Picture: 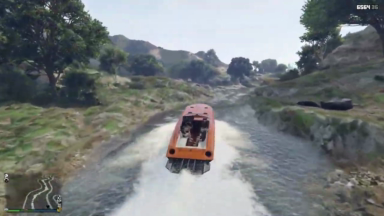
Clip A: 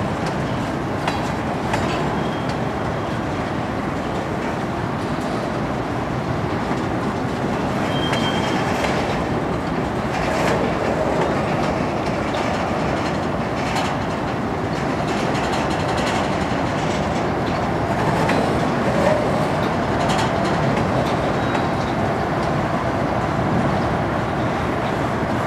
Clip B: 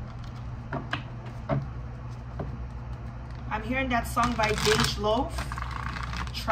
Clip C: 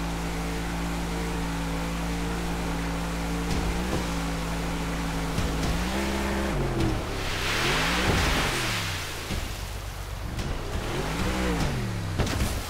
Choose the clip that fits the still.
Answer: C